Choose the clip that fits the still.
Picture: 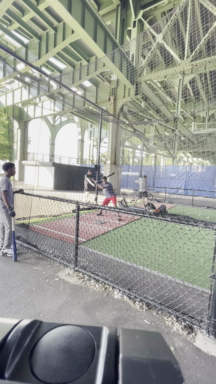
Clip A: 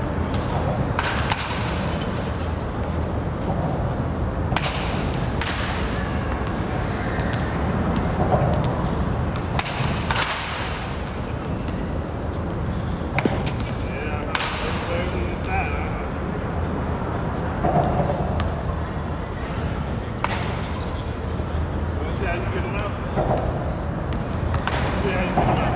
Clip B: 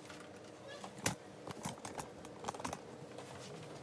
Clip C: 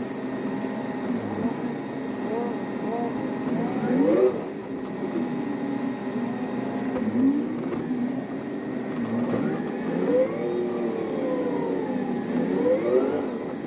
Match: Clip A